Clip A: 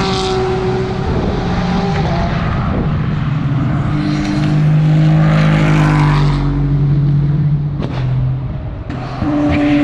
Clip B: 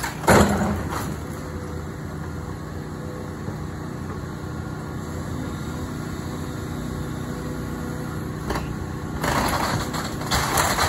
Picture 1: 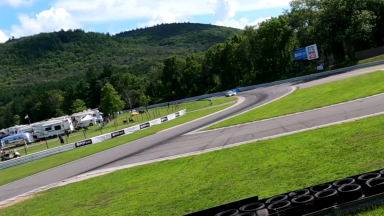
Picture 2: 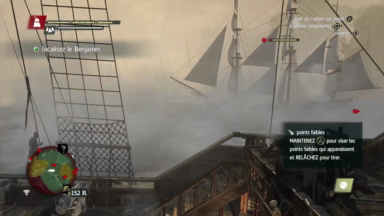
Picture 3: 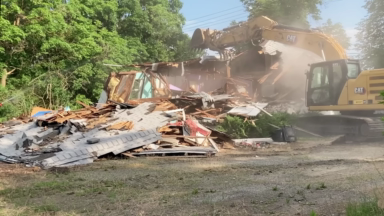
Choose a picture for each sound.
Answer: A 1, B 3